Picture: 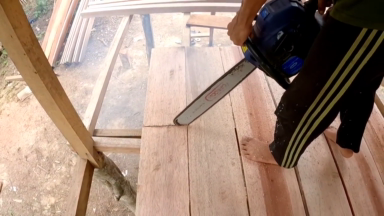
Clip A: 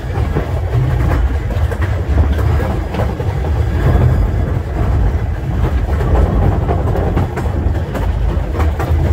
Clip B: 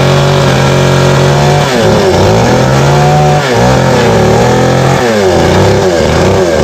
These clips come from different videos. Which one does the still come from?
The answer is B